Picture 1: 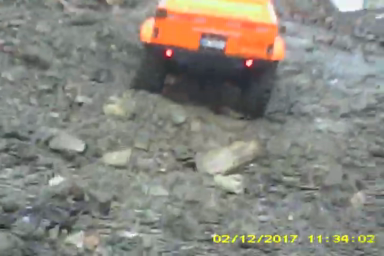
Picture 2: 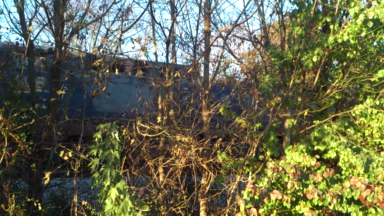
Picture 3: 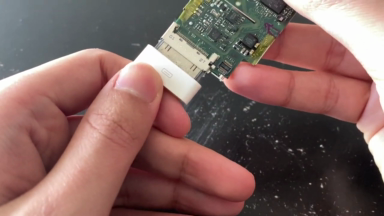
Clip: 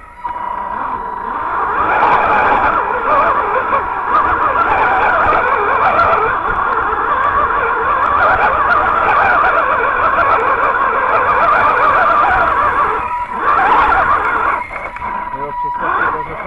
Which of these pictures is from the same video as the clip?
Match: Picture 1